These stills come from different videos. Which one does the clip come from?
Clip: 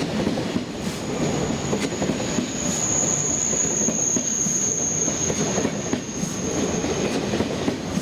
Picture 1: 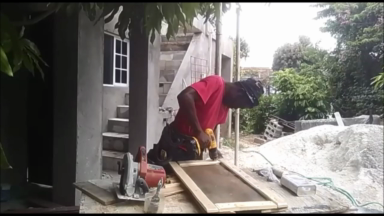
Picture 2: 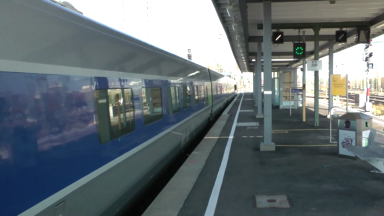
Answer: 2